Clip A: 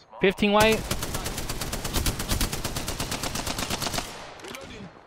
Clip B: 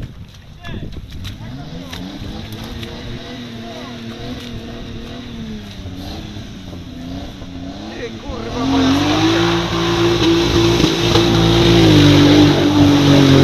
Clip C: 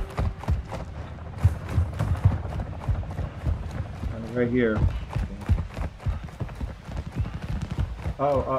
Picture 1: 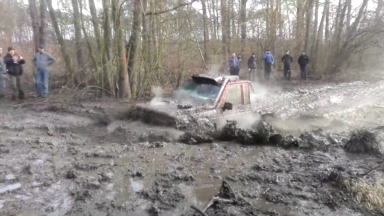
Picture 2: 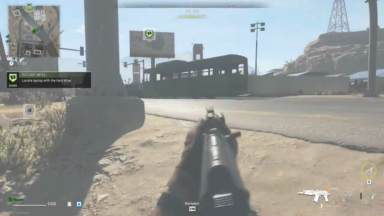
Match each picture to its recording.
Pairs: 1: B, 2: C